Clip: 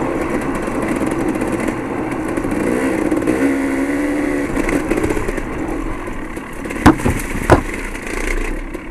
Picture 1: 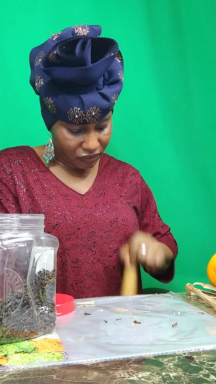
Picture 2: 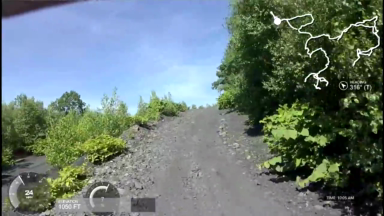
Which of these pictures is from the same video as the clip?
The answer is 2